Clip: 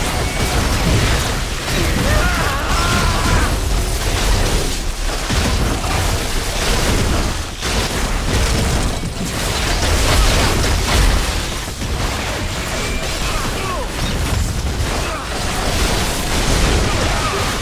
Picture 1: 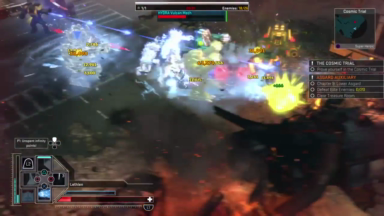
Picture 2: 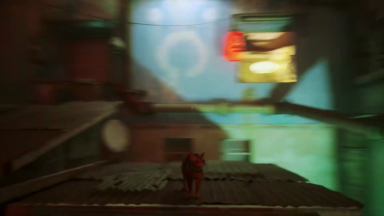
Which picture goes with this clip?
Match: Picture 1